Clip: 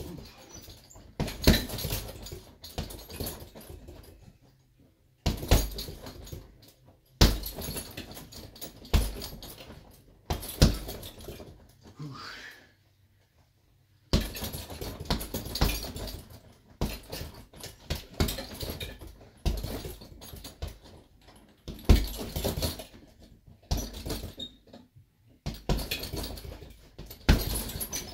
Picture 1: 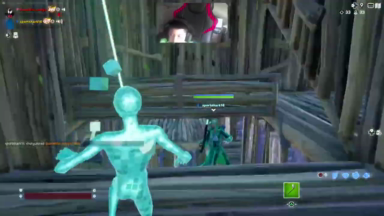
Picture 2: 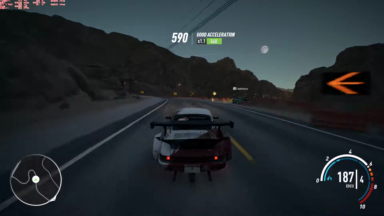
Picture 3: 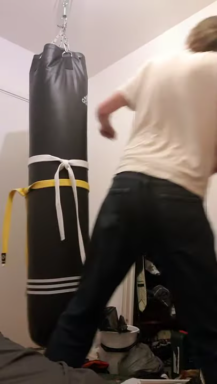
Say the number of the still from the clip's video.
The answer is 3